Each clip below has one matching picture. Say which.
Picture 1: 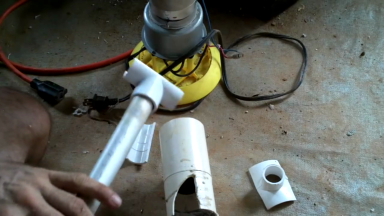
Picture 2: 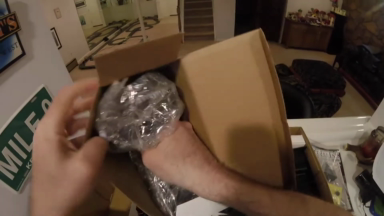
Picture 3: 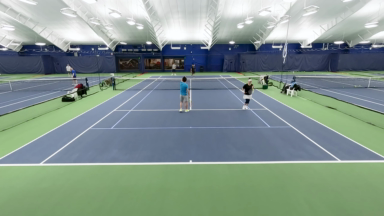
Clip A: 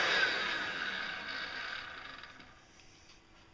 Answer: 1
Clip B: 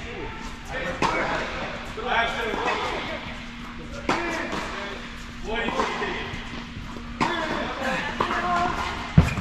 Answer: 3